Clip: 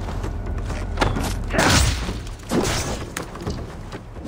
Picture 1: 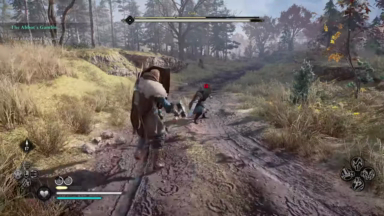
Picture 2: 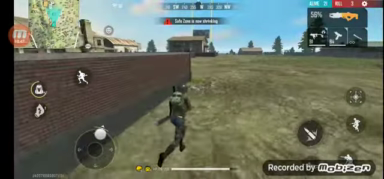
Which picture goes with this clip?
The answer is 1